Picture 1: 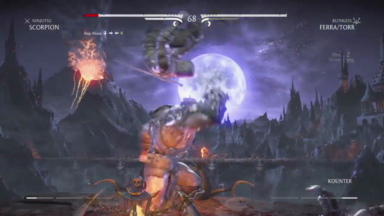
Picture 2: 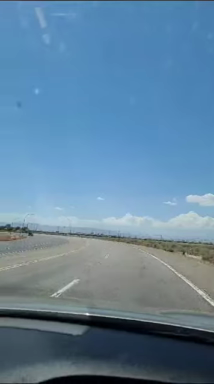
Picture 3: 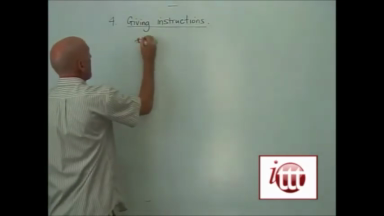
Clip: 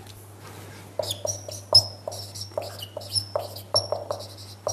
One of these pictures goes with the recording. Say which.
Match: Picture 3